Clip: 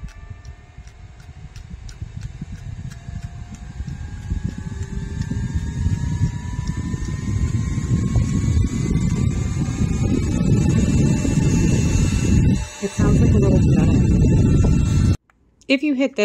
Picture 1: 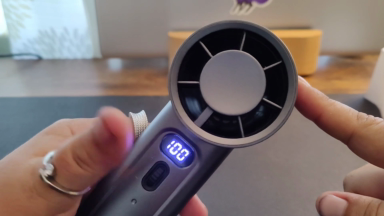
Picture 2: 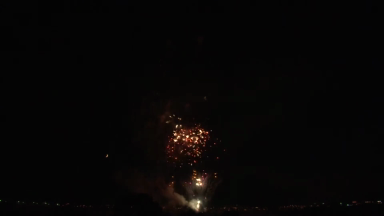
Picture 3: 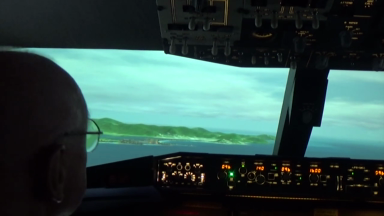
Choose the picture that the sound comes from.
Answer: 1